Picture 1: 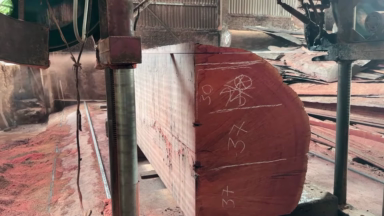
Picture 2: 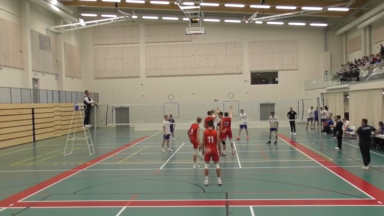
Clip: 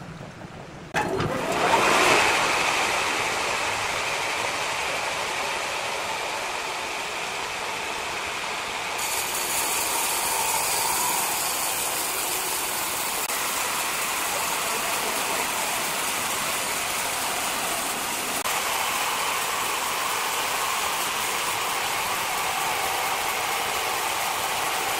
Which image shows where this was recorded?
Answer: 1